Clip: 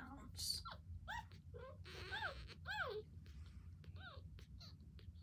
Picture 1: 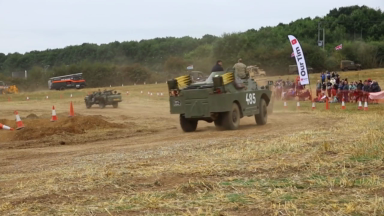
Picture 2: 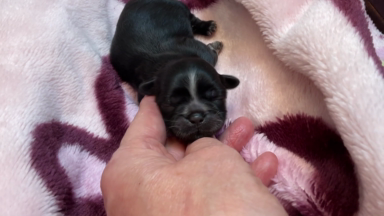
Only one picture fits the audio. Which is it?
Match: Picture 2